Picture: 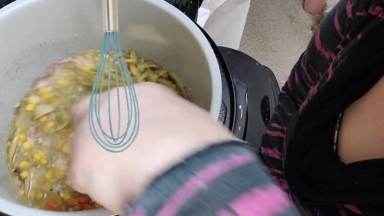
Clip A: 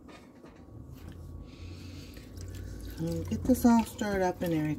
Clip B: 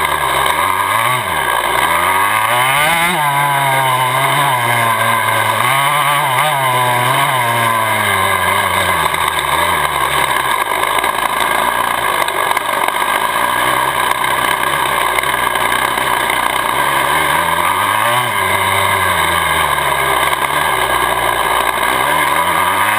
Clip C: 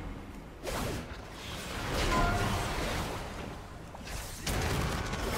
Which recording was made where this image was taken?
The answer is A